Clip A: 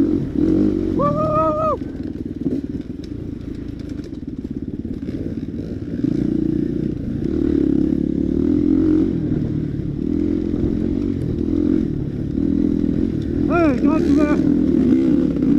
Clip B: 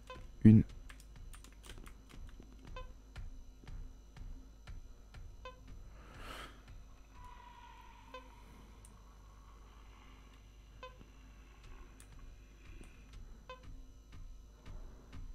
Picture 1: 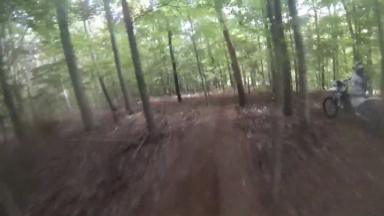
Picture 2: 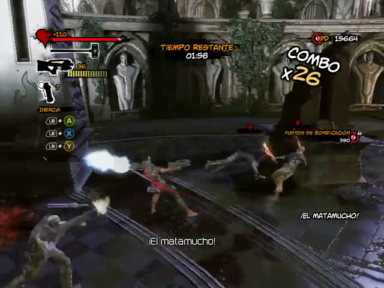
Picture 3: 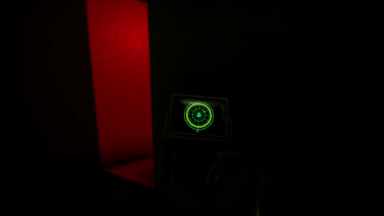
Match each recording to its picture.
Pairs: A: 1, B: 3